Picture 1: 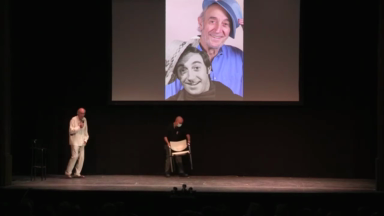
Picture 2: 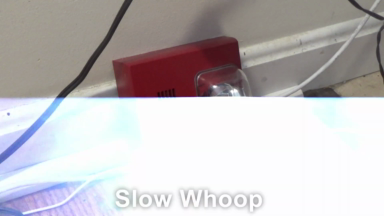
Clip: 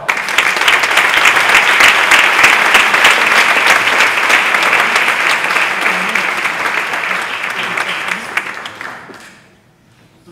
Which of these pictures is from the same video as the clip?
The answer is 1